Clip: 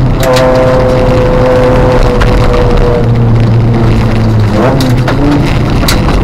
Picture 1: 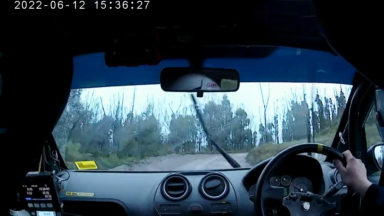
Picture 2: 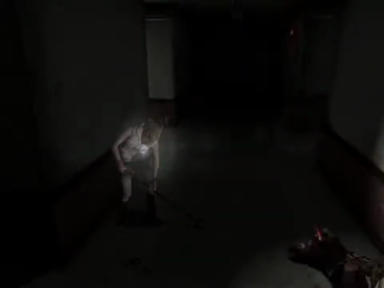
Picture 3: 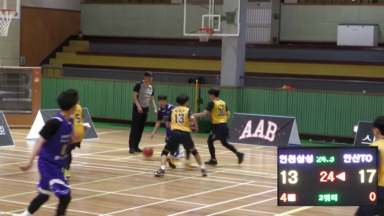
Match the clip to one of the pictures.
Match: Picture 1